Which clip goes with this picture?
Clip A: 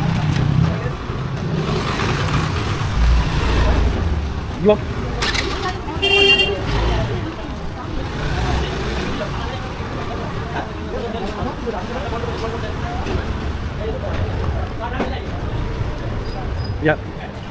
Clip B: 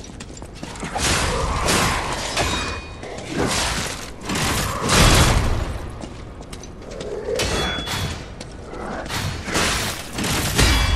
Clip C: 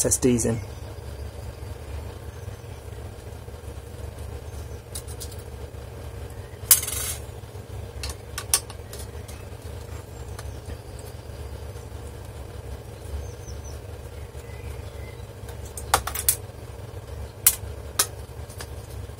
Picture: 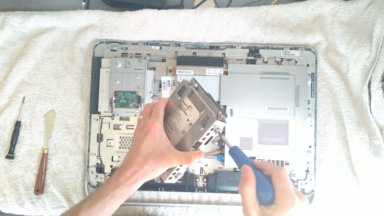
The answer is C